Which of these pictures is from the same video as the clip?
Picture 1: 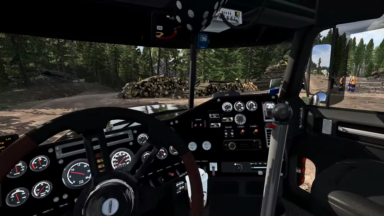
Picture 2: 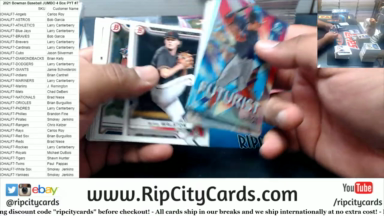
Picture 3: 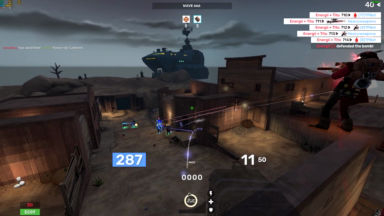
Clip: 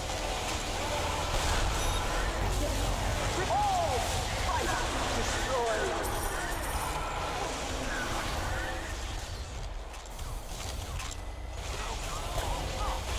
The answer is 3